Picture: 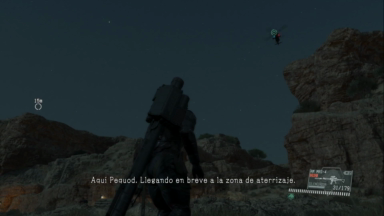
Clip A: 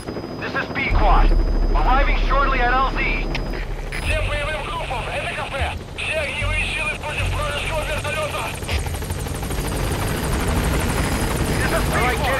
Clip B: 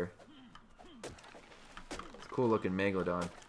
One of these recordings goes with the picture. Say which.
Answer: A